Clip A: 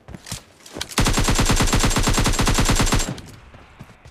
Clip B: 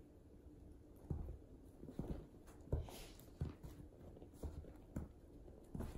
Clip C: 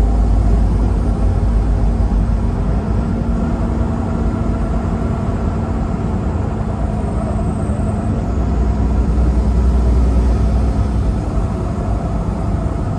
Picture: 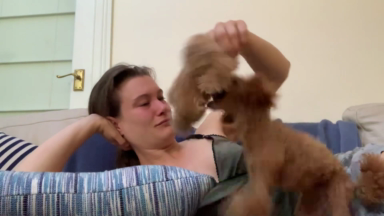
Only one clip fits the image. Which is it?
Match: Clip B